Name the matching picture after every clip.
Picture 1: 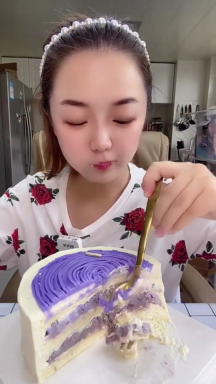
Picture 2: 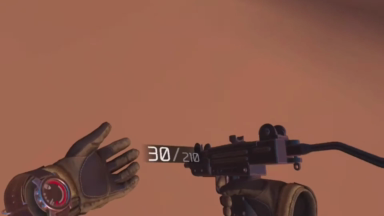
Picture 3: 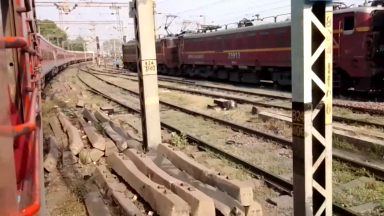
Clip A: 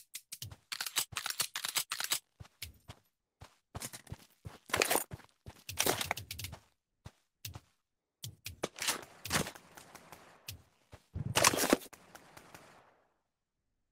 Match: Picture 2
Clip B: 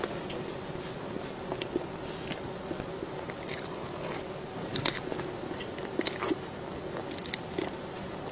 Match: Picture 1